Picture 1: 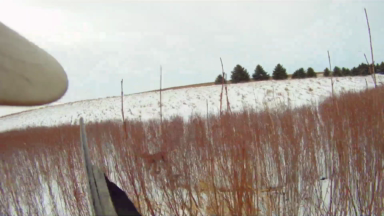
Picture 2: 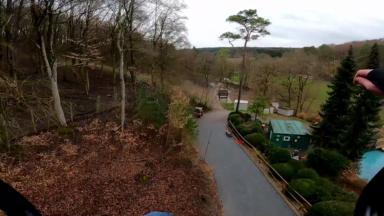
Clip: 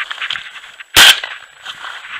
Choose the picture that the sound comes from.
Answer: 1